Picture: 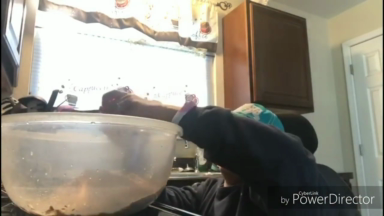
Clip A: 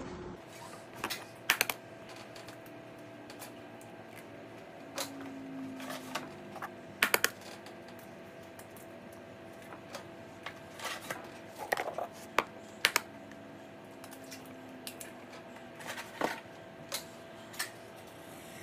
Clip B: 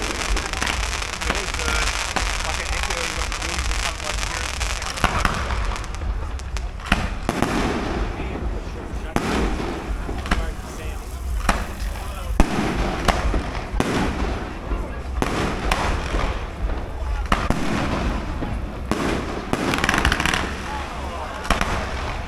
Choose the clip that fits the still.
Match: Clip A